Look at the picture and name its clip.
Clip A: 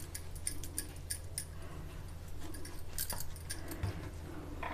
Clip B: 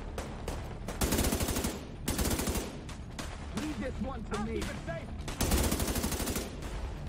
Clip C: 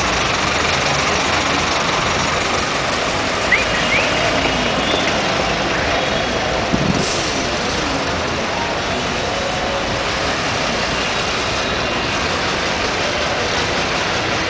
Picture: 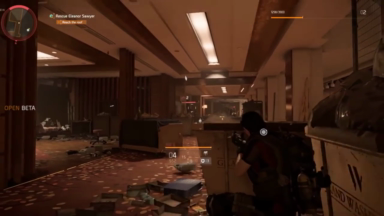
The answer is B